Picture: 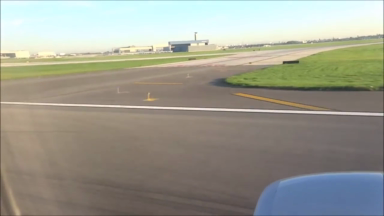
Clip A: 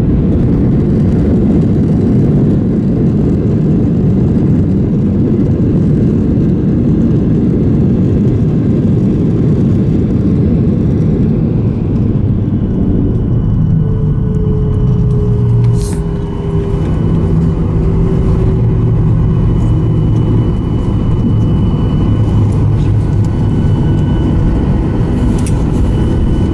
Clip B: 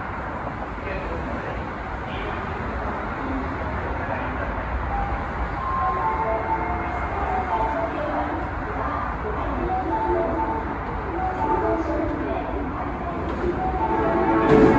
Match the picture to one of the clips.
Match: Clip A